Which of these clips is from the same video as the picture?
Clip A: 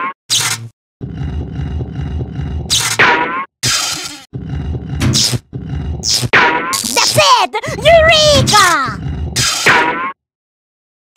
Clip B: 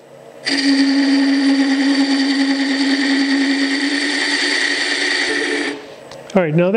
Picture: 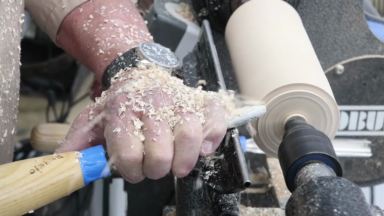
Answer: B